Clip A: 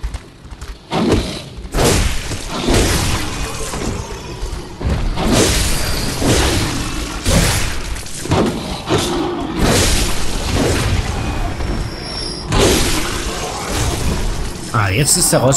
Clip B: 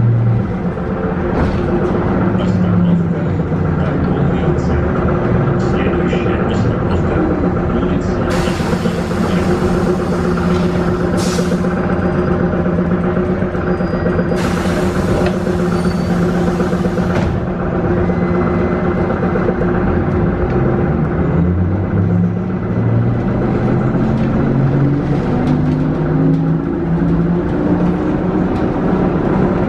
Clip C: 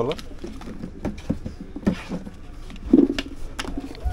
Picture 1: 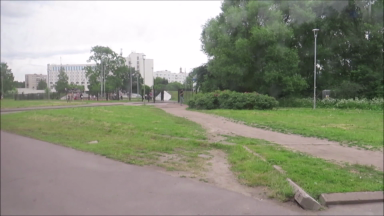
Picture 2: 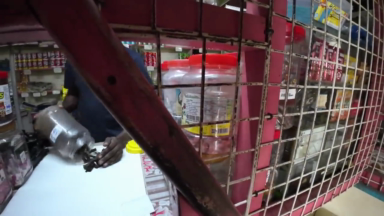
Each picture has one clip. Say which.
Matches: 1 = B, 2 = C